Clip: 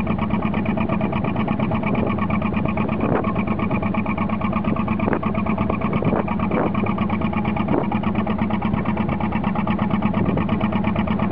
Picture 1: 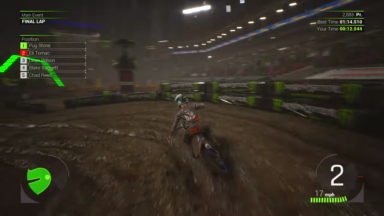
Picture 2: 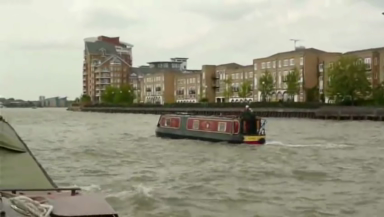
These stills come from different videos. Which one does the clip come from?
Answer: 2